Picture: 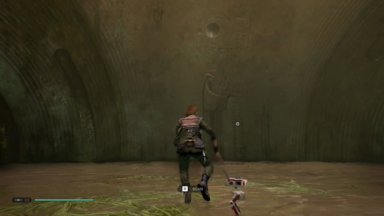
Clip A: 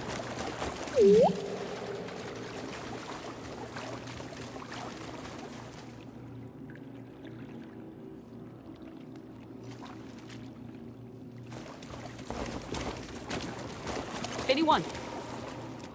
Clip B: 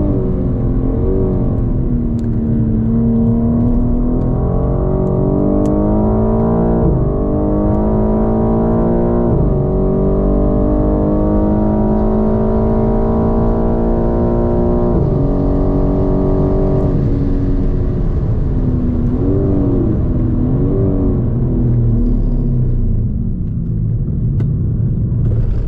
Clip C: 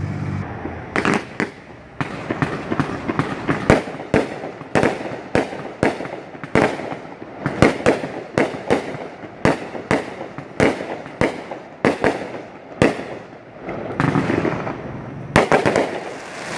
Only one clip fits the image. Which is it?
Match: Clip A